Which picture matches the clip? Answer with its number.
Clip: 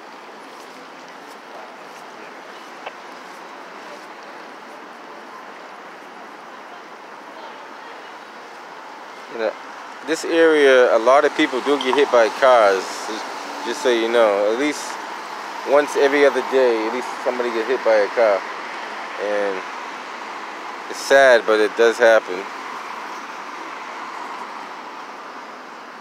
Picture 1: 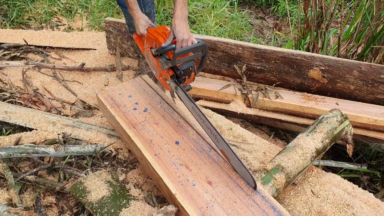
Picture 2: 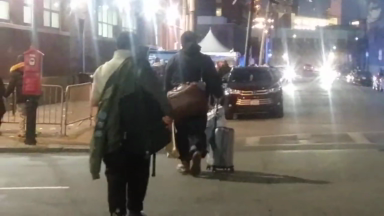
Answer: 2